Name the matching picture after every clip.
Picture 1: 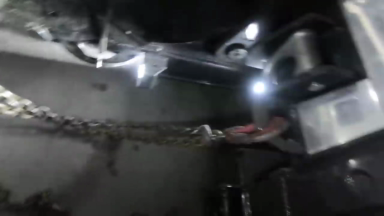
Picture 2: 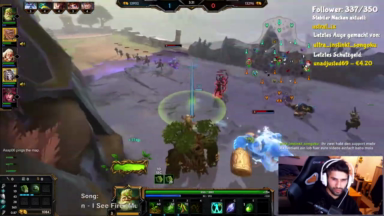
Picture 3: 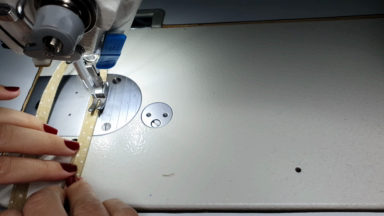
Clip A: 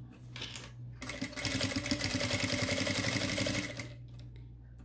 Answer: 3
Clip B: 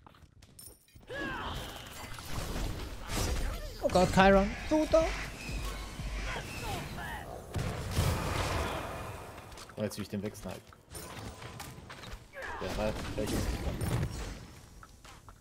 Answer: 2